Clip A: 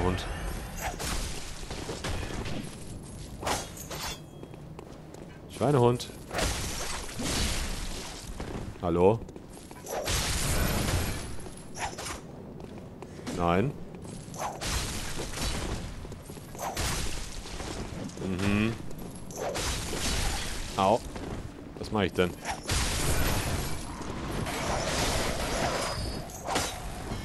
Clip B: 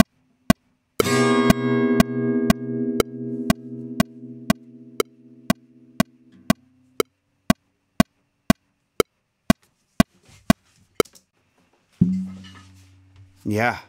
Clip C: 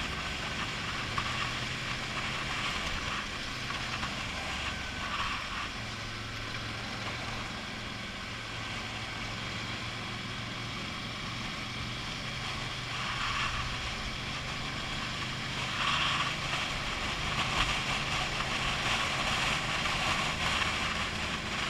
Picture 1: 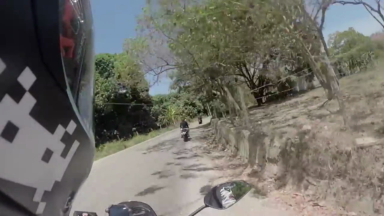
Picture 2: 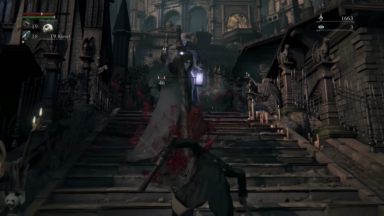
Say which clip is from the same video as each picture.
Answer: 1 C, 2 A